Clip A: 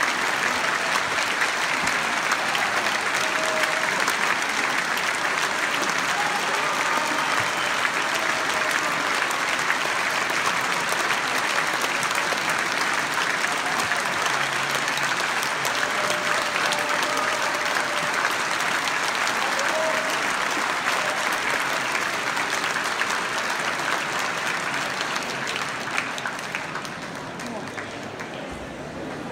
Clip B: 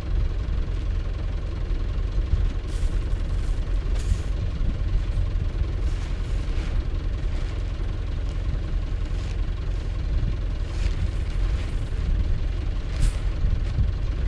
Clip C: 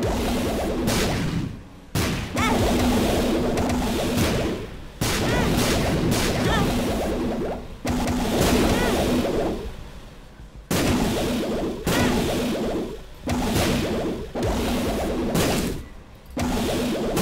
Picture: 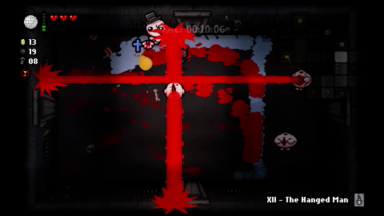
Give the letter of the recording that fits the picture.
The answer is C